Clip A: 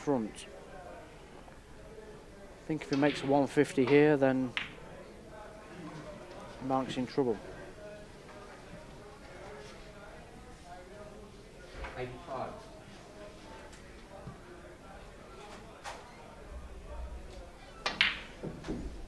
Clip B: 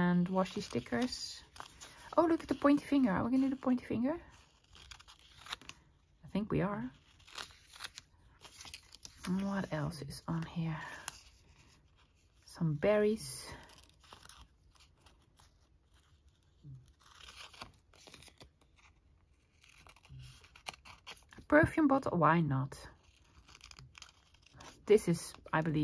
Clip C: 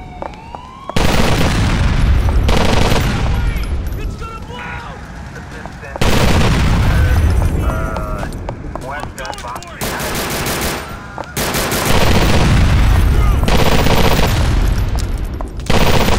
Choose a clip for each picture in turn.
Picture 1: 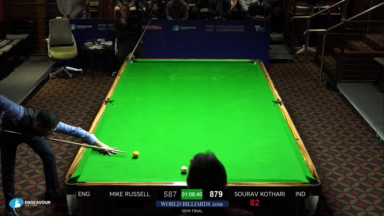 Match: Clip A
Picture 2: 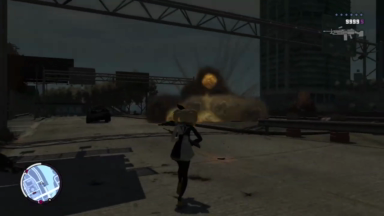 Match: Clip C